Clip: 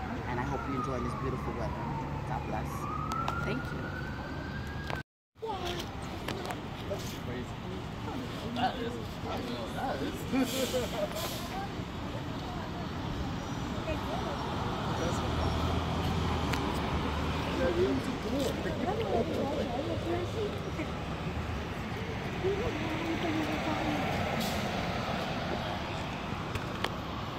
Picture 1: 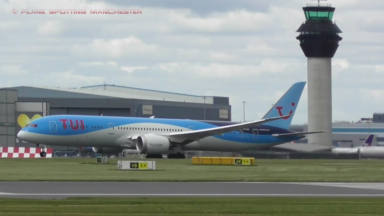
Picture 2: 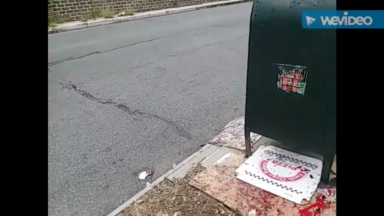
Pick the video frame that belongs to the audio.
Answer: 2